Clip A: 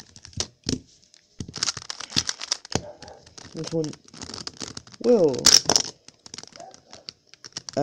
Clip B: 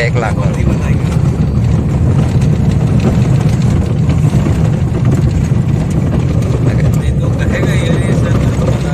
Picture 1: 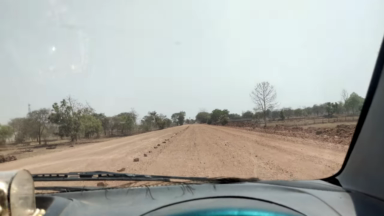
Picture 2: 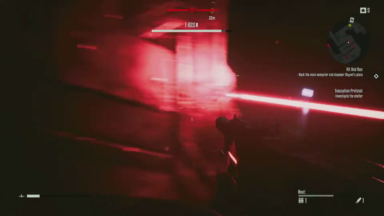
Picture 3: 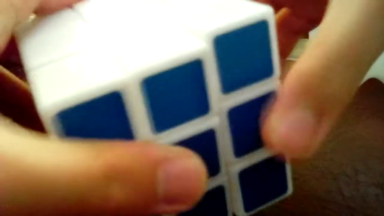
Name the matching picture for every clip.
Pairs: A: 3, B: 1